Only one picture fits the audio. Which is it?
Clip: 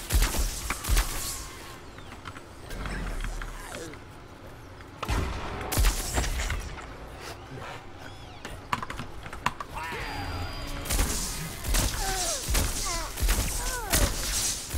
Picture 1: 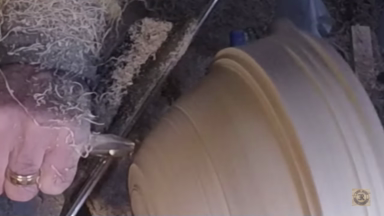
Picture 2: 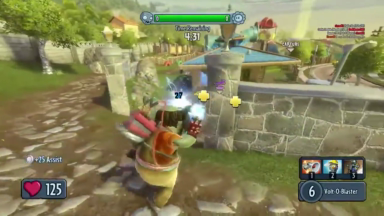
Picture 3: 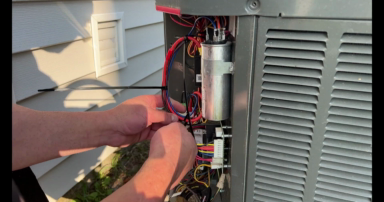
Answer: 2